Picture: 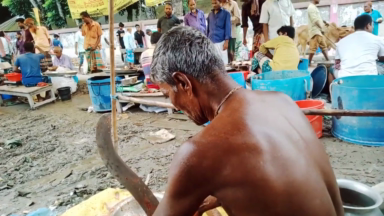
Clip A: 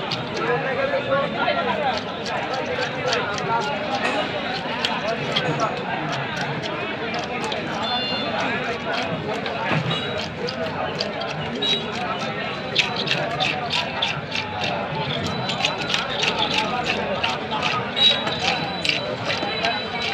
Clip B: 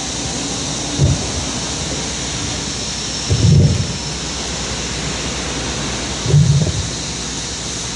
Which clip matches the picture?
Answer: A